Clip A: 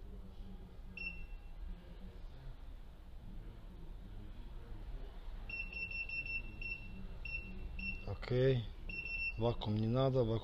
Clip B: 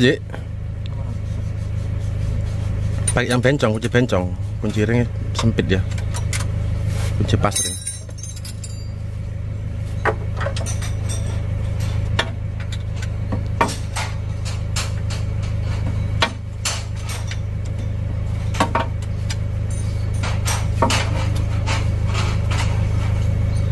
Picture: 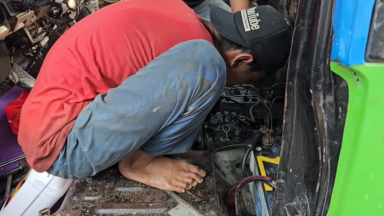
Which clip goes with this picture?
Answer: B